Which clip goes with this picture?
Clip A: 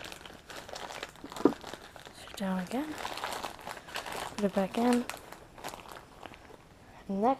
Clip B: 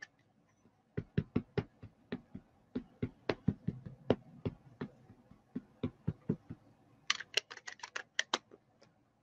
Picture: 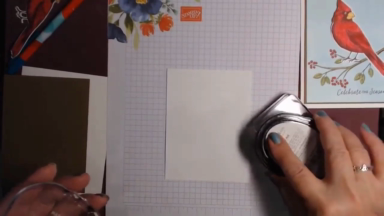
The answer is B